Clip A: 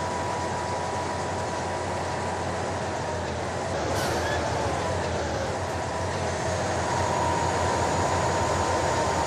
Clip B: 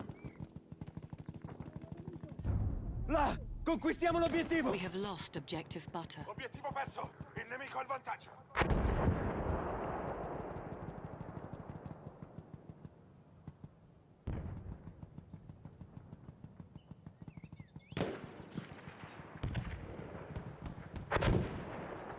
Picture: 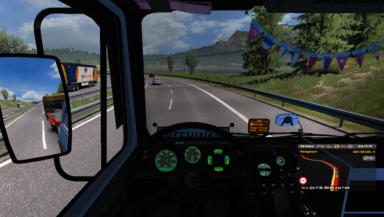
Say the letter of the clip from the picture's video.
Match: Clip A